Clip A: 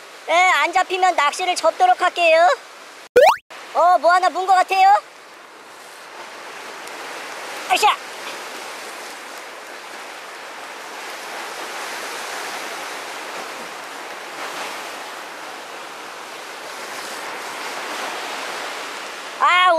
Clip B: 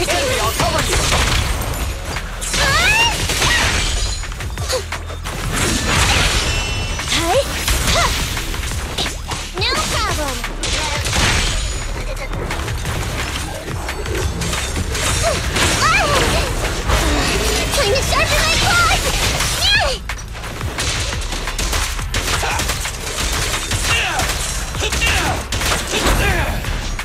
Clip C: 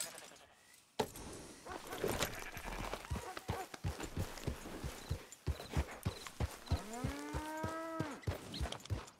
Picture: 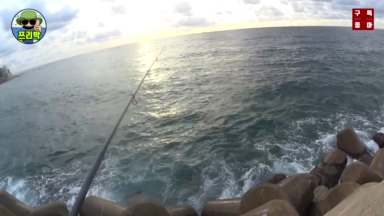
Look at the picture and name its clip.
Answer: A